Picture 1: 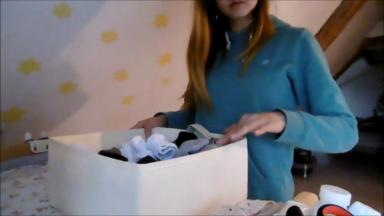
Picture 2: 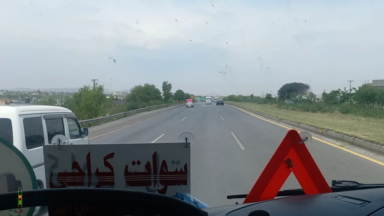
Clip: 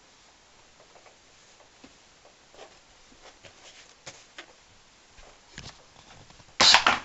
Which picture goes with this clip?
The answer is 1